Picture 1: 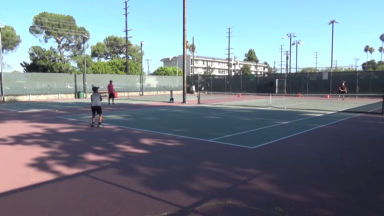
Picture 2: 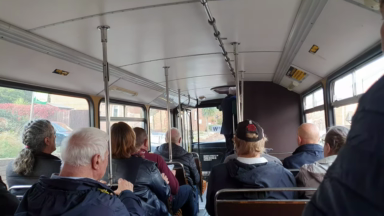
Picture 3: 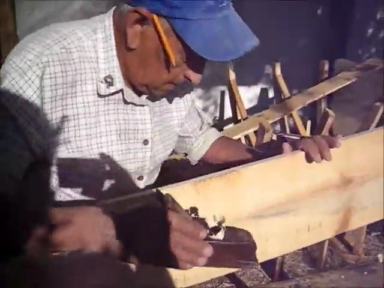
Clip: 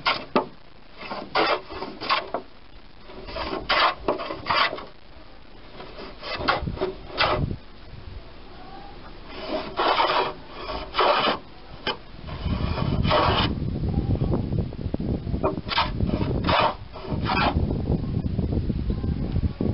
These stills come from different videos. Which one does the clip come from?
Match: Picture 3